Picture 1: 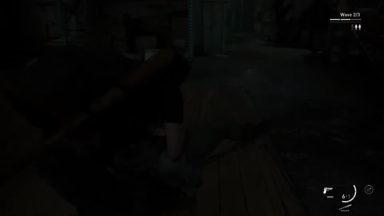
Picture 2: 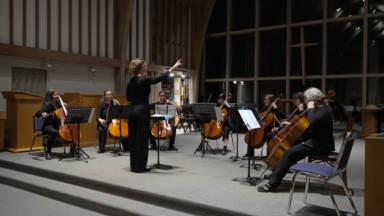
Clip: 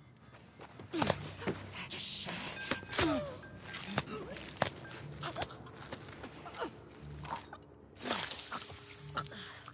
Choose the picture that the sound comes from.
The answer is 1